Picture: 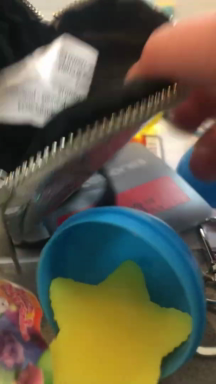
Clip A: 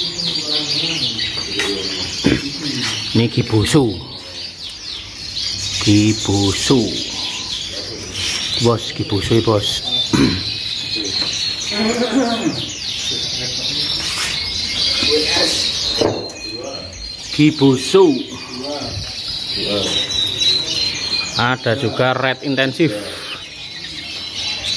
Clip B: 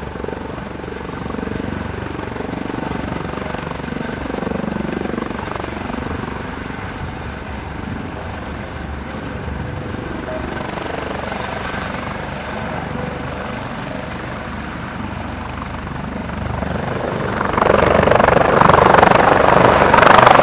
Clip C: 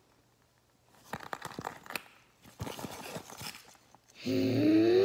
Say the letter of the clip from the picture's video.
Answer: C